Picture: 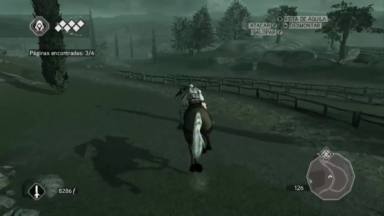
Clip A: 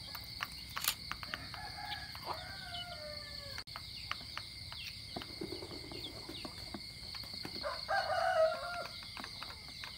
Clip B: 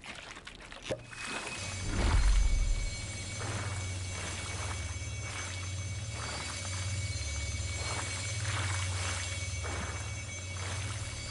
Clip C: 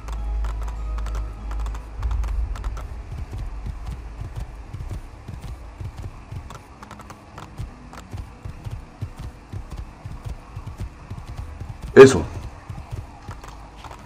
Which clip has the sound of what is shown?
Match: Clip C